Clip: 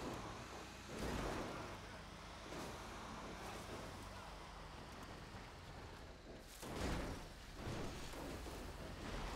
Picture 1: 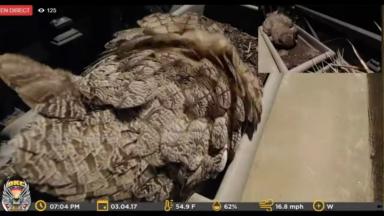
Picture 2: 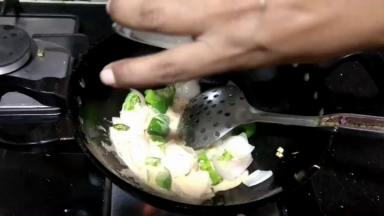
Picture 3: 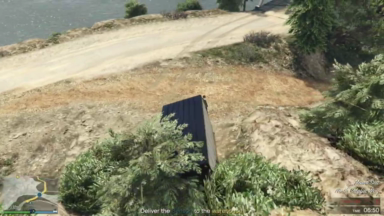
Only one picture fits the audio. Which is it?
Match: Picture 3